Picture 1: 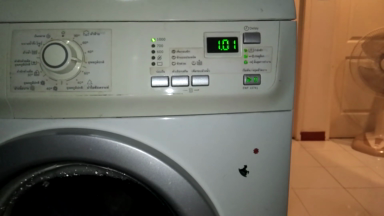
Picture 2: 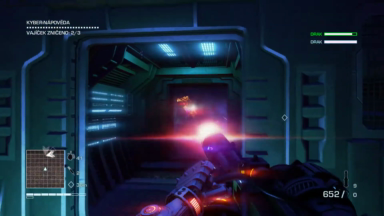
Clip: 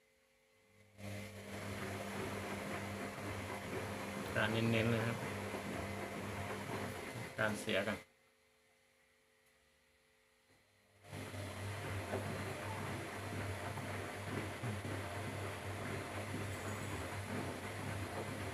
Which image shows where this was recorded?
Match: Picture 1